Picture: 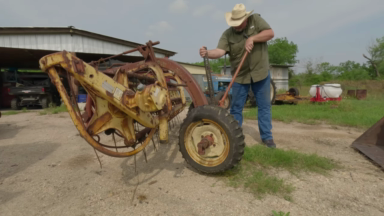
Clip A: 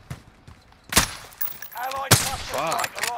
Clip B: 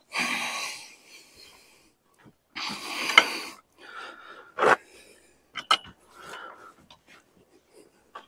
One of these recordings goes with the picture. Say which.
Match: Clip B